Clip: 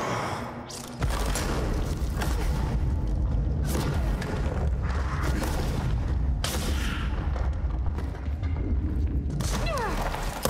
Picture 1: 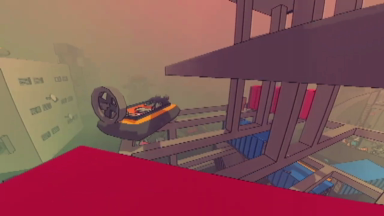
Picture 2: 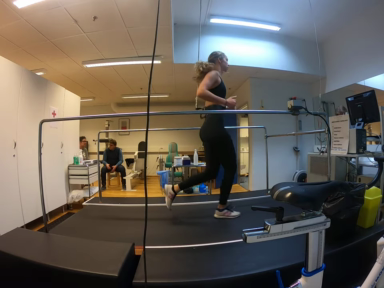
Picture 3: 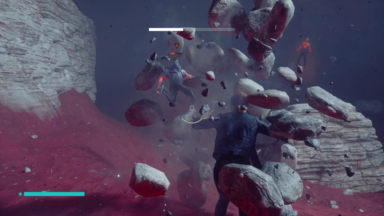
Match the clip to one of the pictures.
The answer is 3